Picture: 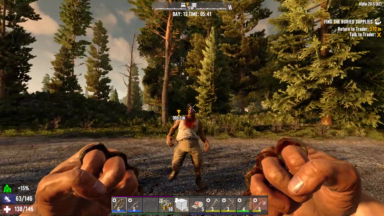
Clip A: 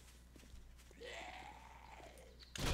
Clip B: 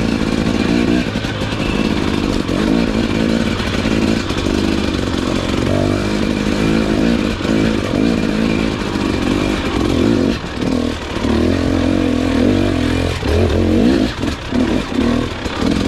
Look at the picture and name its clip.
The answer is A